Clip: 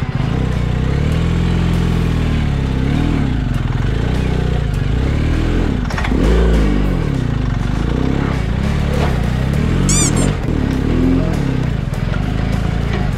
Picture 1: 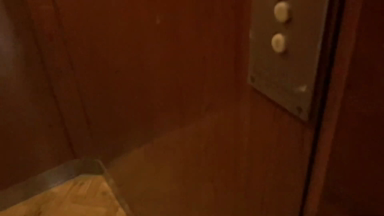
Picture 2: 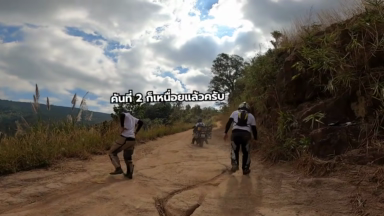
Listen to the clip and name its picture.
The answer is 2